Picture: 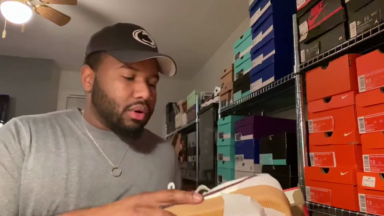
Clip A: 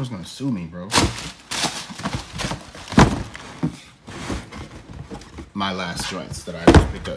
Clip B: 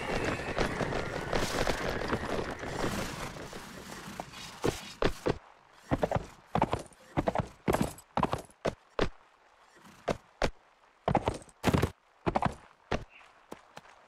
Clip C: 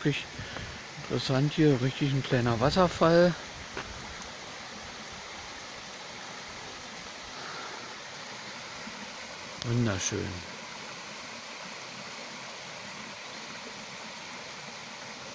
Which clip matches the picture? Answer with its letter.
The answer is A